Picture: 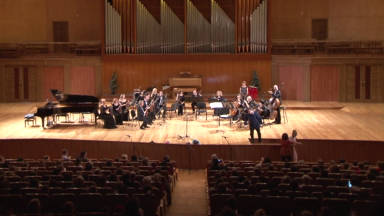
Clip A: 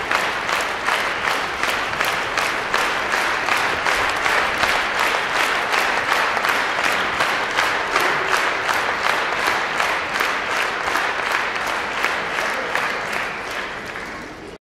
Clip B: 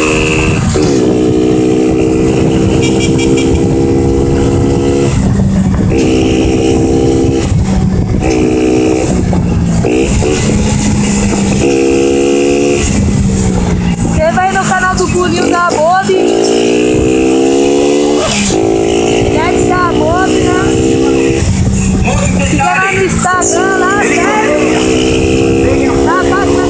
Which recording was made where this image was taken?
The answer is A